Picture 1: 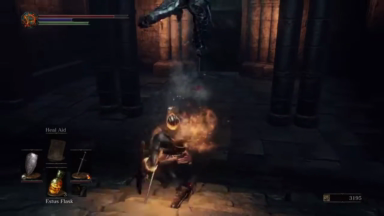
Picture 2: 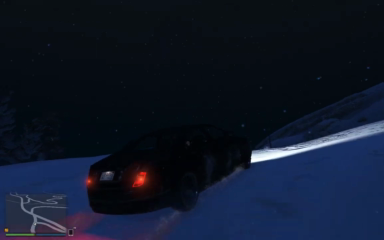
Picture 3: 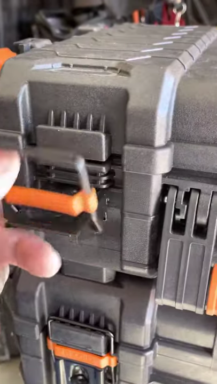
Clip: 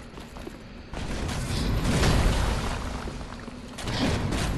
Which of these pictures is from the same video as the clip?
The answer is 1